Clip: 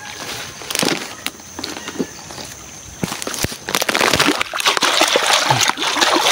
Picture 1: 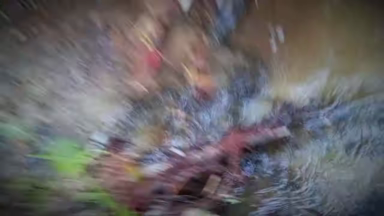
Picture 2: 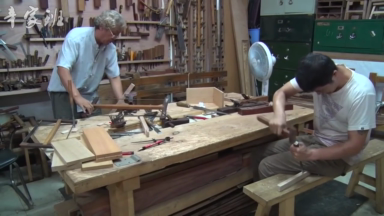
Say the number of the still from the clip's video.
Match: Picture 1